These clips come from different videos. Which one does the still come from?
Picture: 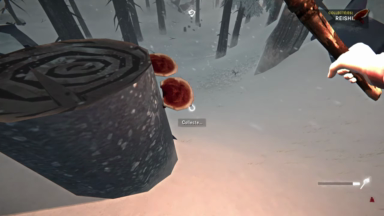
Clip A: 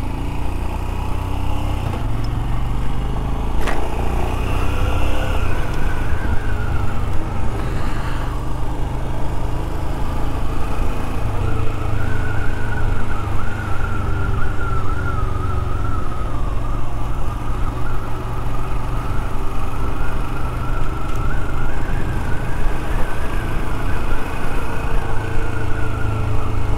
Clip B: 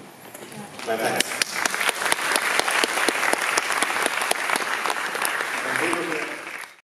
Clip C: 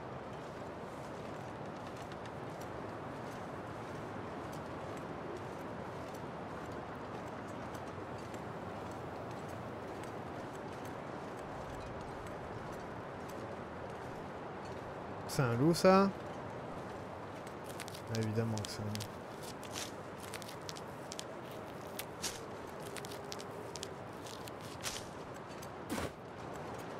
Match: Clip C